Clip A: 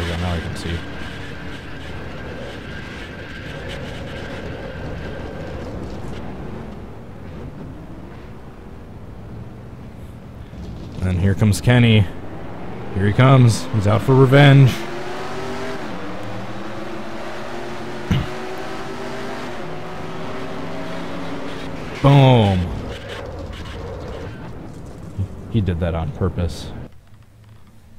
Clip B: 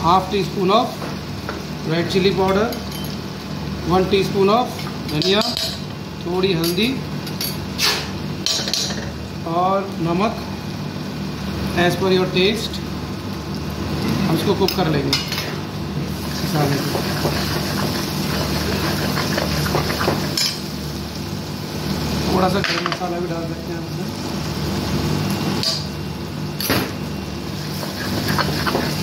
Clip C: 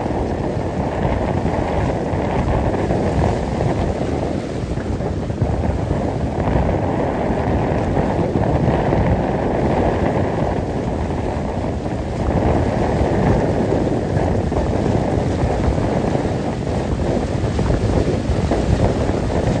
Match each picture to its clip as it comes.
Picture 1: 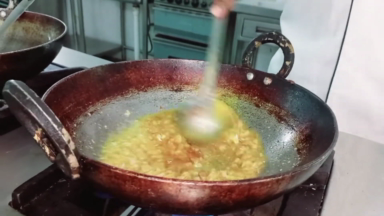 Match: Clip B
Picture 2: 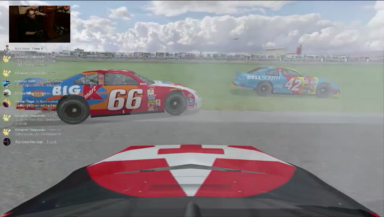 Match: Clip A